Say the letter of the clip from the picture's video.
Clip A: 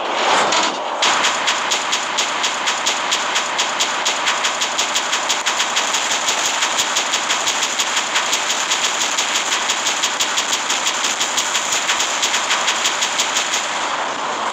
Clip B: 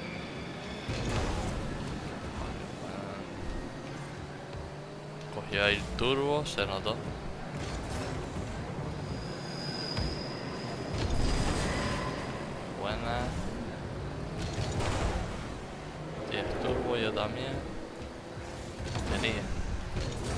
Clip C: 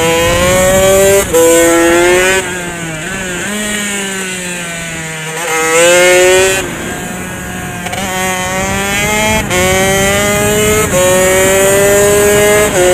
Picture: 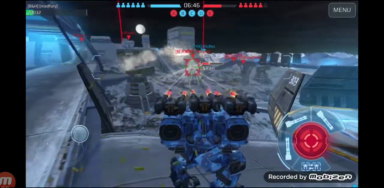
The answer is A